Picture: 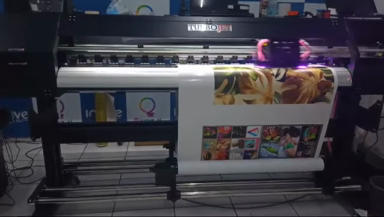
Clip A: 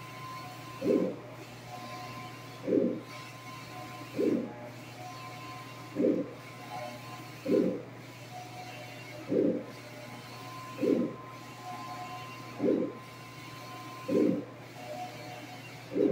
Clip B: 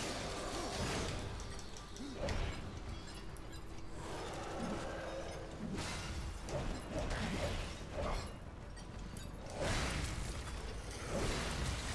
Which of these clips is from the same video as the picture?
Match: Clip A